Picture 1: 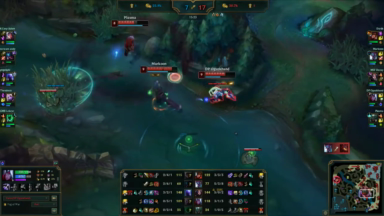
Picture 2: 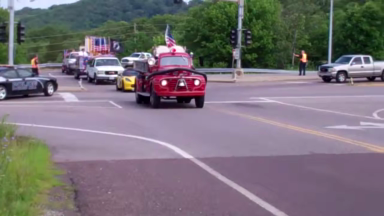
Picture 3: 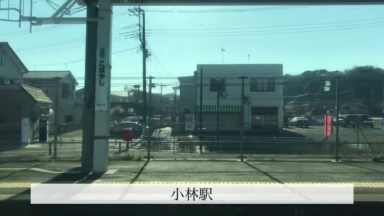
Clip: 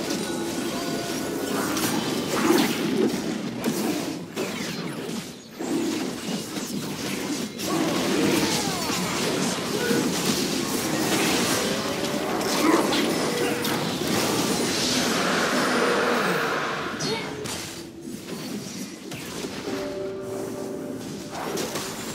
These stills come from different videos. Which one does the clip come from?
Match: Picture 1